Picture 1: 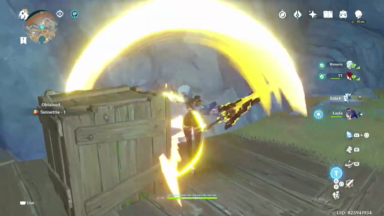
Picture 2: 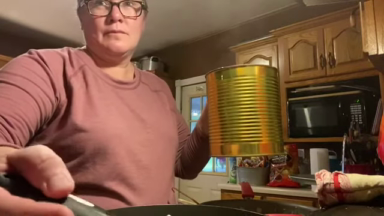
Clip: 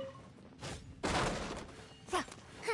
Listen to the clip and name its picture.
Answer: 1